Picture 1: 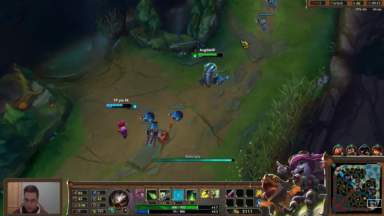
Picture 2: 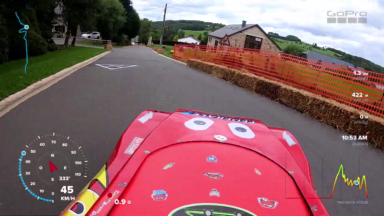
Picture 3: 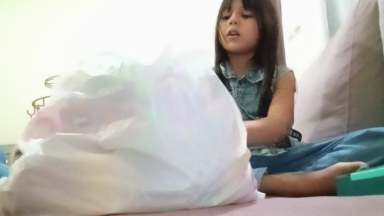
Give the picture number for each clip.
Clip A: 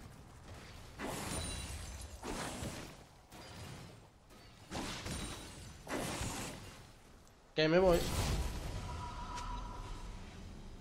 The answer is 1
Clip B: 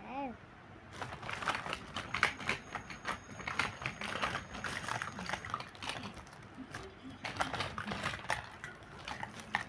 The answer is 3